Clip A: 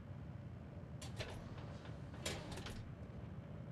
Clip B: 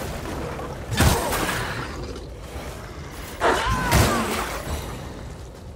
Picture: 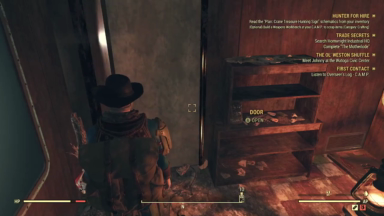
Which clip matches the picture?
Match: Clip A